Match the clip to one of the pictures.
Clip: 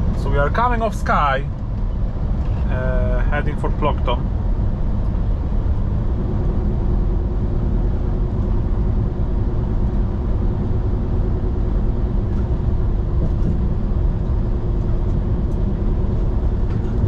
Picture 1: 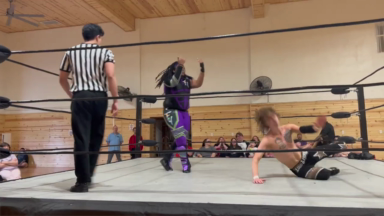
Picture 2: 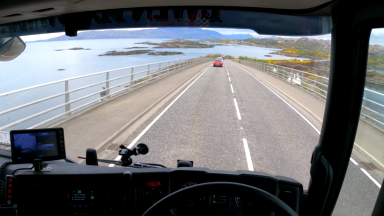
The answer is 2